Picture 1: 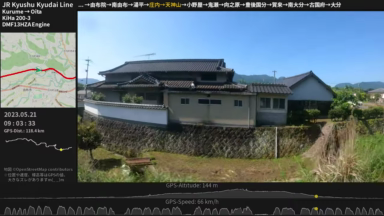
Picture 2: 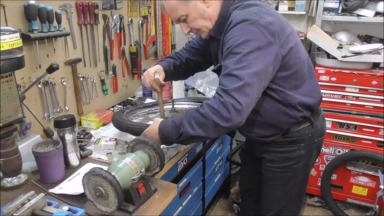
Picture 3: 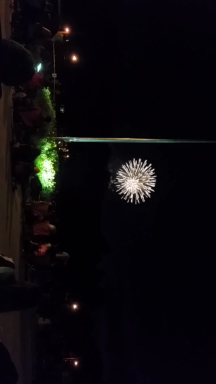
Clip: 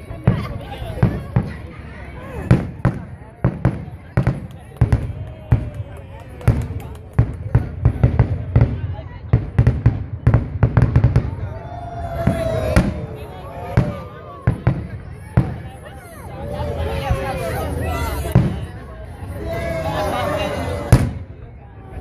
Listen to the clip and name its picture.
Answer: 3